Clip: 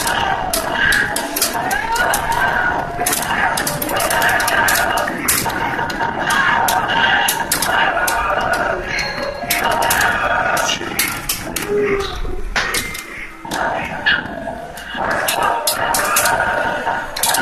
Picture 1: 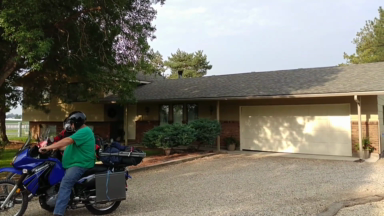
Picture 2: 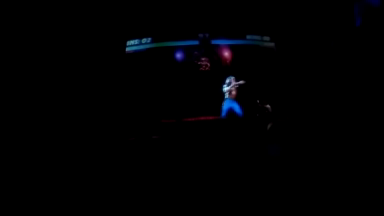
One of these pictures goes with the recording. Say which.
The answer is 2